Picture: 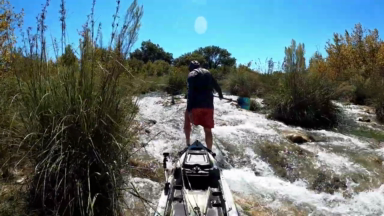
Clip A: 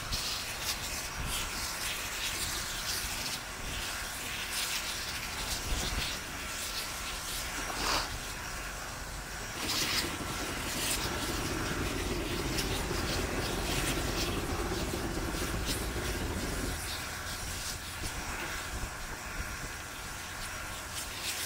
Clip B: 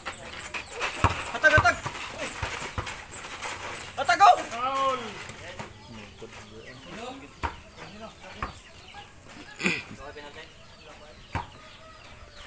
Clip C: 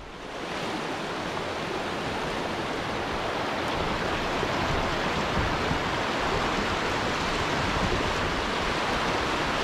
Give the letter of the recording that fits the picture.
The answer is C